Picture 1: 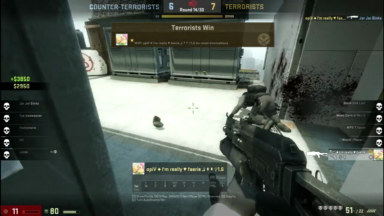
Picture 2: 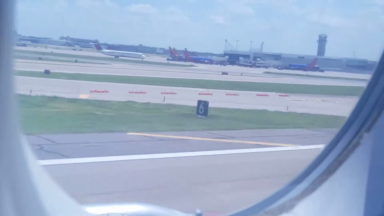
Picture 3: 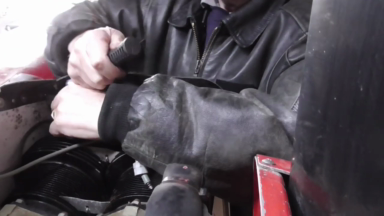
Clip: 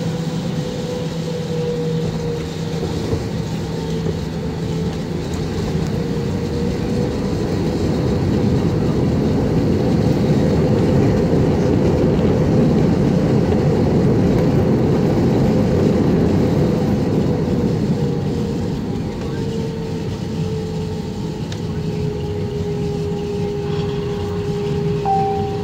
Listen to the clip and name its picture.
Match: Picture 2